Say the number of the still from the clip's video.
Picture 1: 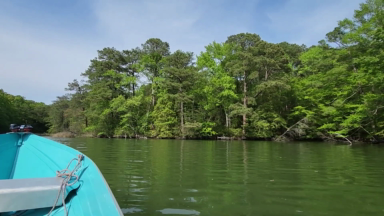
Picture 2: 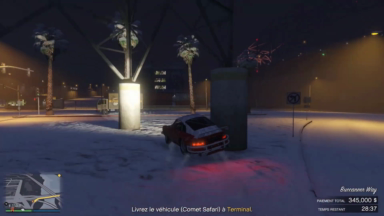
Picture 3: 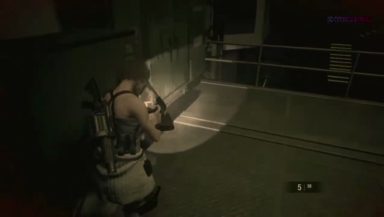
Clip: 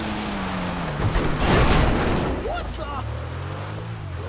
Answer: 2